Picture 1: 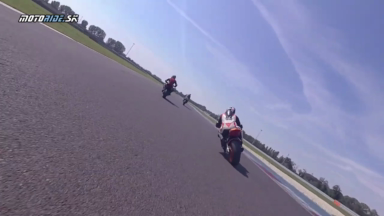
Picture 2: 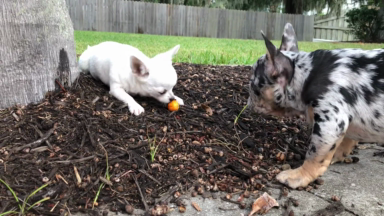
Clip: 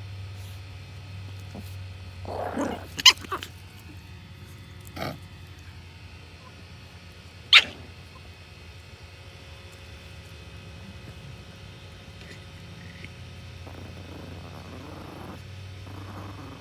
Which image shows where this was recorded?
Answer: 2